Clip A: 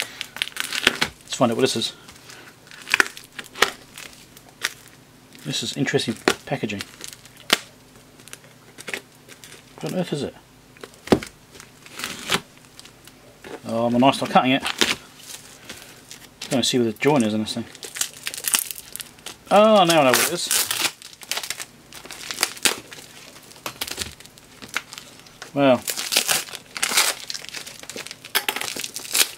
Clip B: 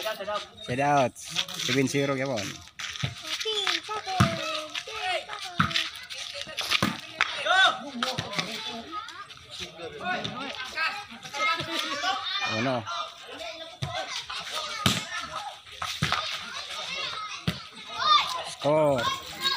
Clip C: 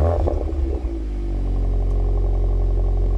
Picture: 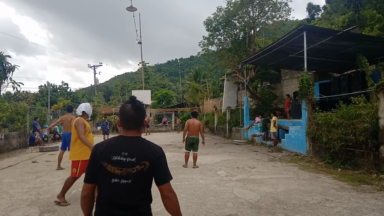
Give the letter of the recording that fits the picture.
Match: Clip B